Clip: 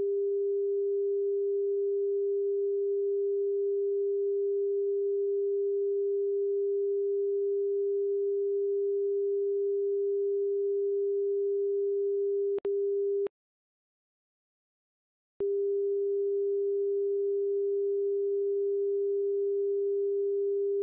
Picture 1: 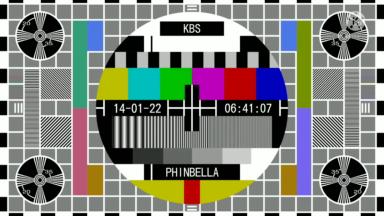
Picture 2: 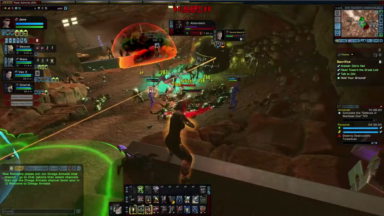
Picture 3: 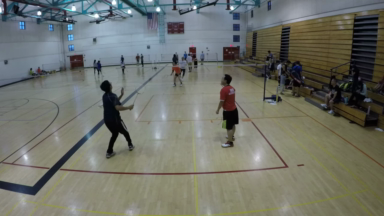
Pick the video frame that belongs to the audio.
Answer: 1